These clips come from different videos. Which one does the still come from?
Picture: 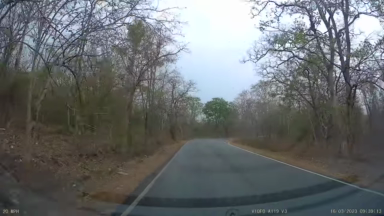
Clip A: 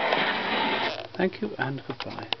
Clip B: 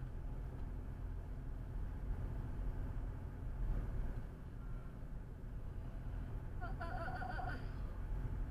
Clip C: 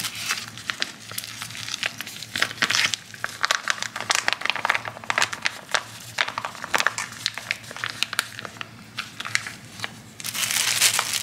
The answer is B